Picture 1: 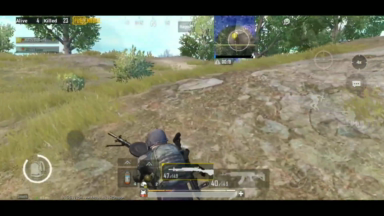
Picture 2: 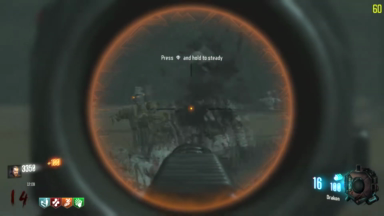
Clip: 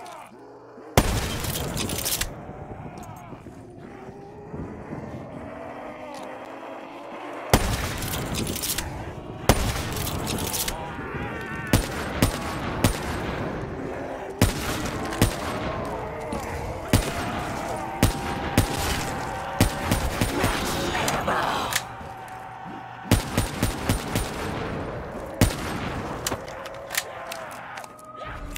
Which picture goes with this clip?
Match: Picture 2